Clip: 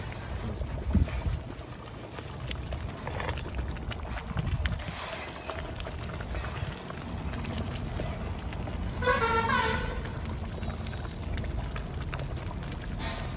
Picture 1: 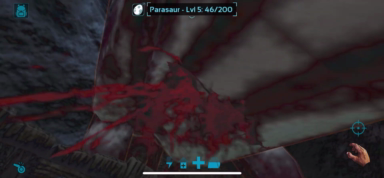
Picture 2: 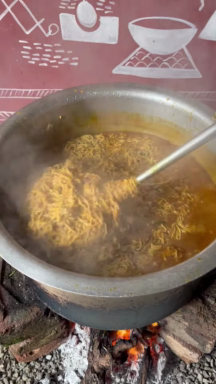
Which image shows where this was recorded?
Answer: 2